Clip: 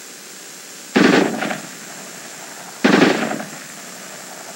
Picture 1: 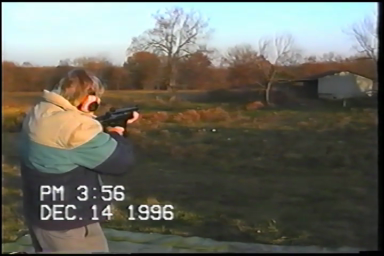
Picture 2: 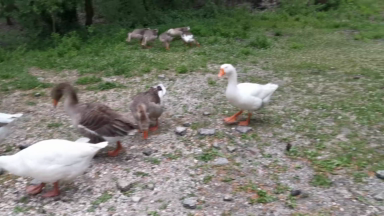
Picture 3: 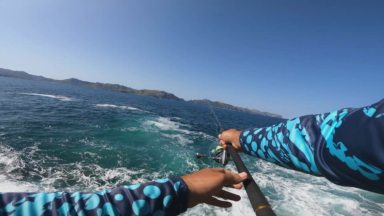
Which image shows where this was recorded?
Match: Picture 1